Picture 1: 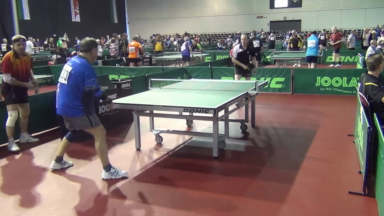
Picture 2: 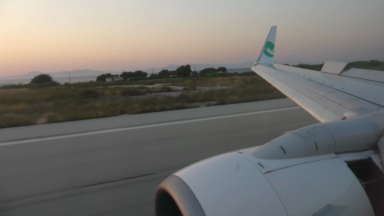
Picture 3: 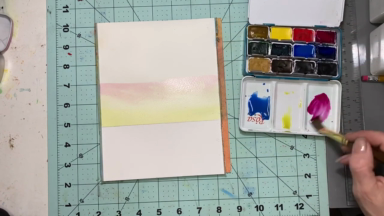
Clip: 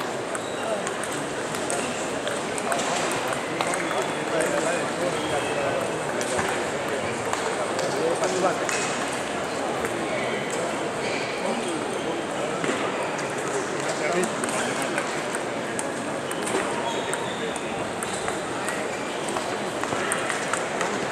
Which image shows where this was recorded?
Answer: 1